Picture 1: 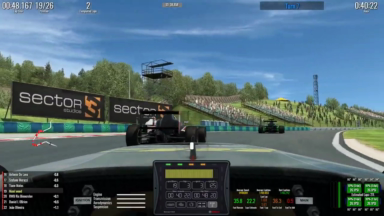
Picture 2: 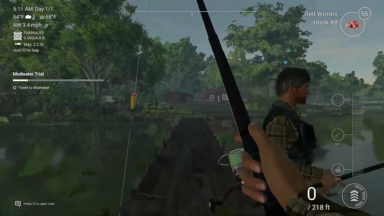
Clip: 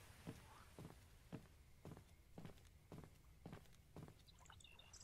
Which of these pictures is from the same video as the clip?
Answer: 2